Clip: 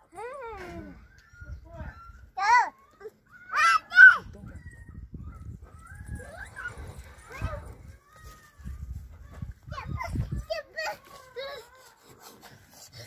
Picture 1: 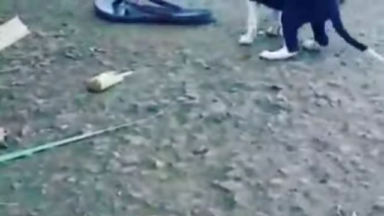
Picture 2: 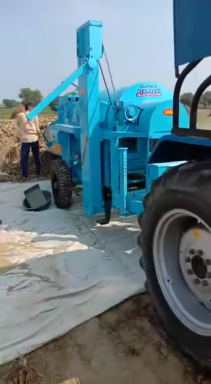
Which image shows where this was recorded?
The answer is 1